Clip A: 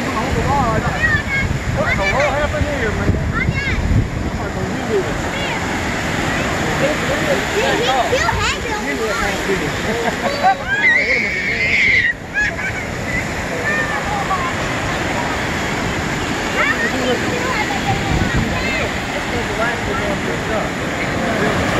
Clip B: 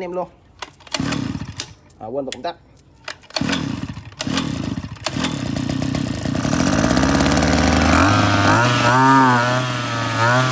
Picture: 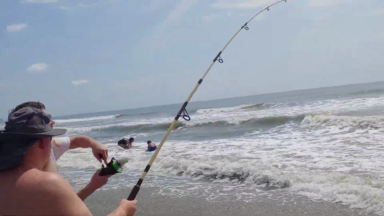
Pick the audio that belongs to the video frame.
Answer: A